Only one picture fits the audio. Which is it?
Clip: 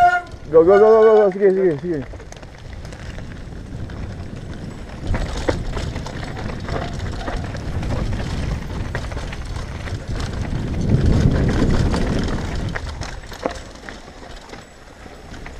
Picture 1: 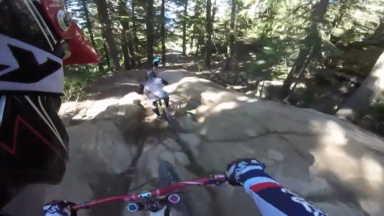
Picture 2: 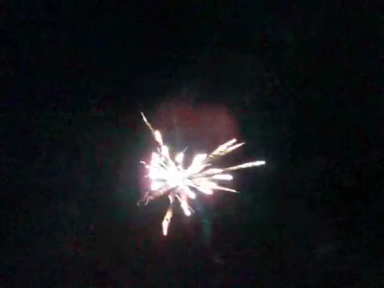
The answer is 1